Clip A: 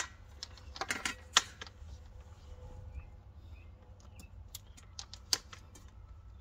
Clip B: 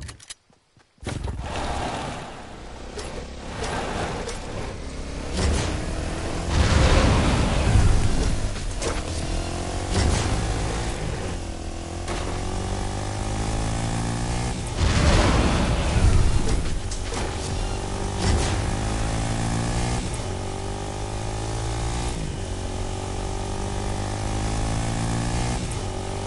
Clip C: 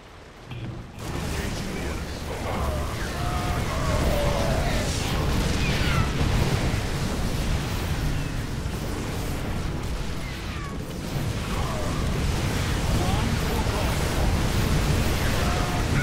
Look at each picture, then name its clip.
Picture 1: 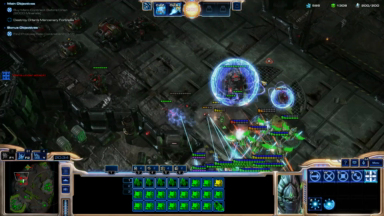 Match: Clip C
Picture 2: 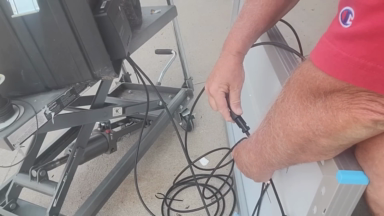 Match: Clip A